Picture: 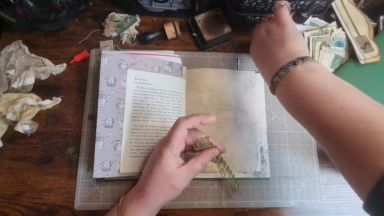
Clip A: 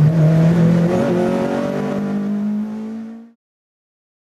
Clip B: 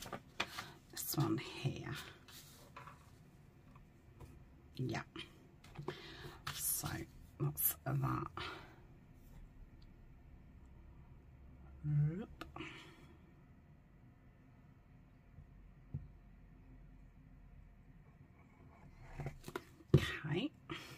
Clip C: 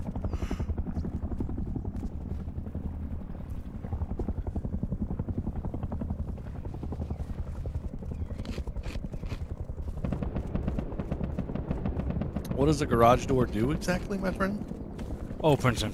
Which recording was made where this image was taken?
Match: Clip B